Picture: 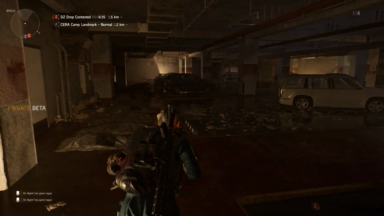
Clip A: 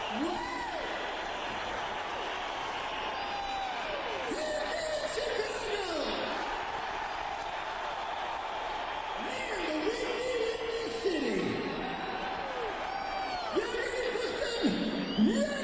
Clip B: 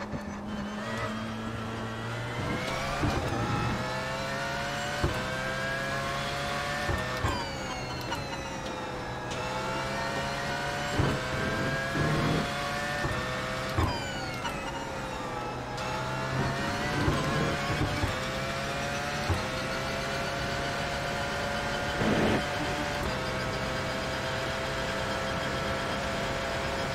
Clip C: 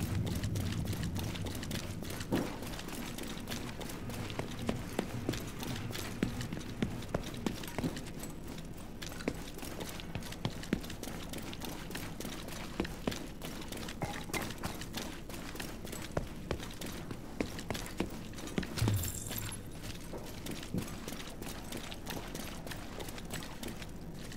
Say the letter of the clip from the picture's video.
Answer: C